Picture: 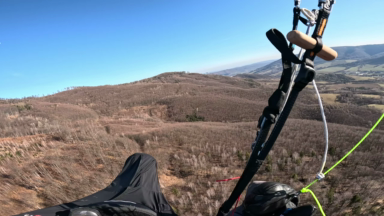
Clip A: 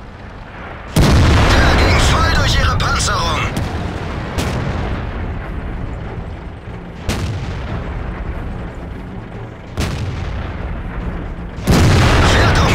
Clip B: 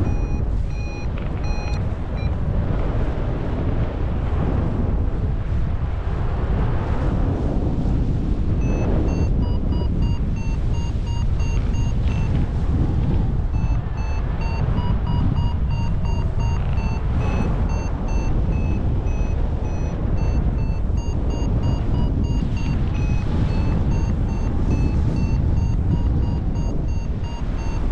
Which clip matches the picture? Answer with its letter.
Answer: B